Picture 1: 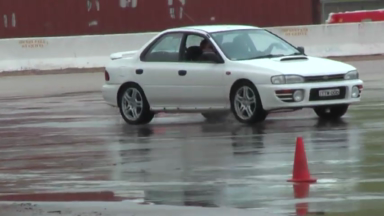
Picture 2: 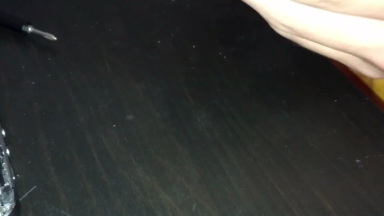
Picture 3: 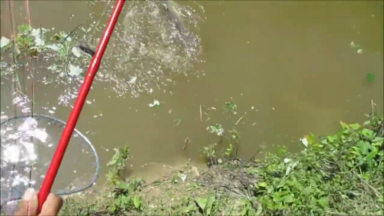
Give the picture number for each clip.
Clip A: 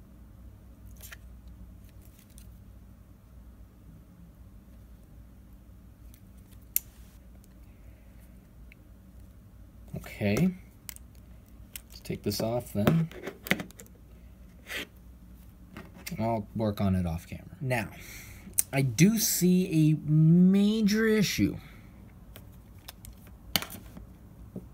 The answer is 2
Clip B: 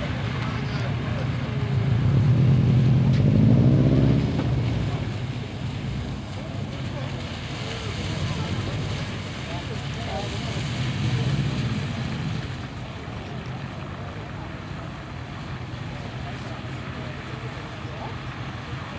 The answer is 1